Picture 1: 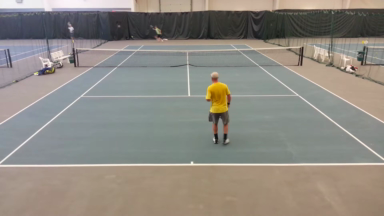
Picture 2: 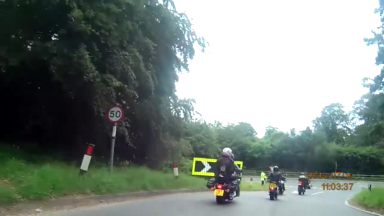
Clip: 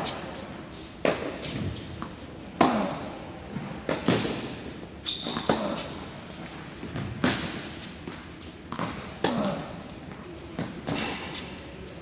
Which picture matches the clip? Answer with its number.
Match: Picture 1